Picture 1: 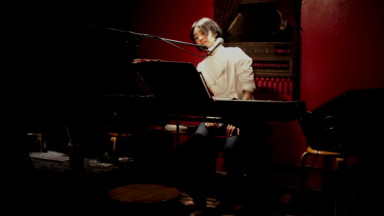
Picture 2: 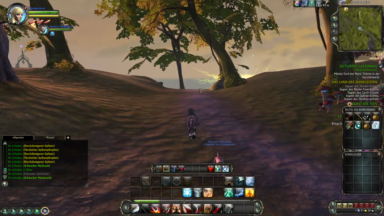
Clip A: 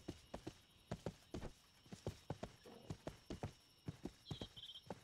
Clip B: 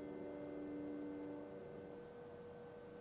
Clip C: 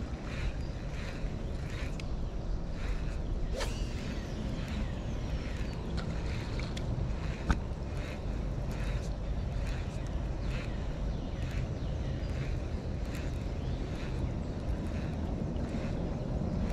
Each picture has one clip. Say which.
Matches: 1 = B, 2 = A